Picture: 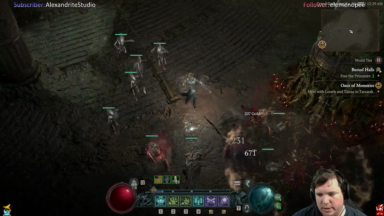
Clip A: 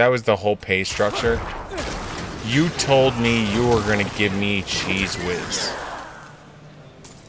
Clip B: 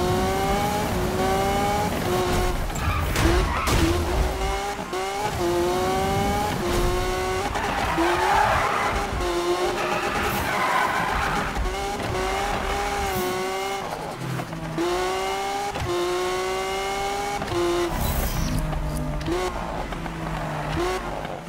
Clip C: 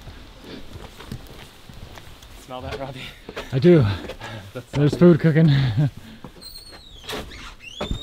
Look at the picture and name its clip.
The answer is A